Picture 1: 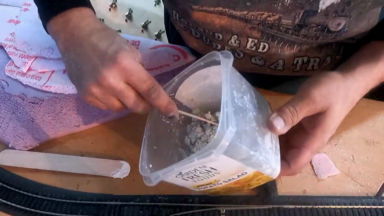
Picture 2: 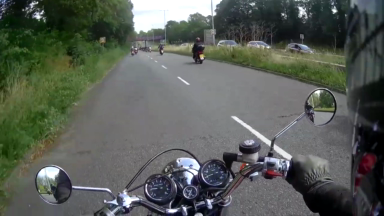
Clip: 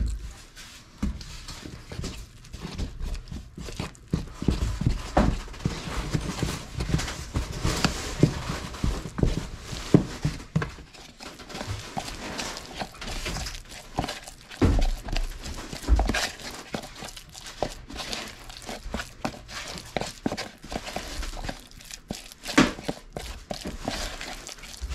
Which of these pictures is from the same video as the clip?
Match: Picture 1